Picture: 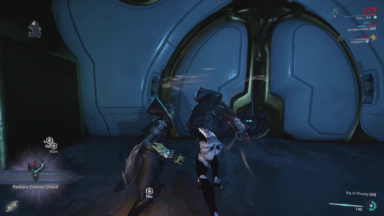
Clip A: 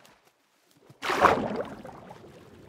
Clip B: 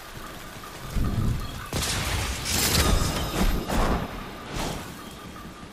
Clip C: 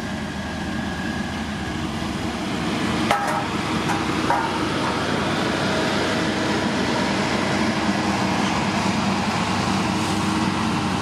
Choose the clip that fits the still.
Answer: B